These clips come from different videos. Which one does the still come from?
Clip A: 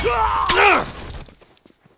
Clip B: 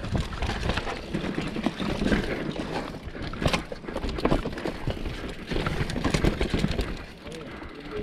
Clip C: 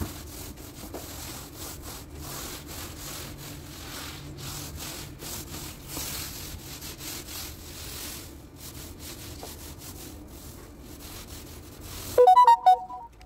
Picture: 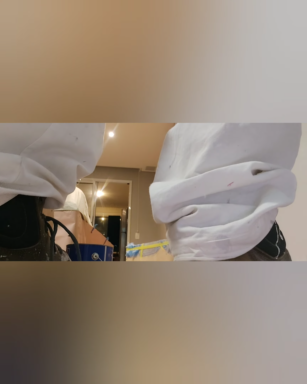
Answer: C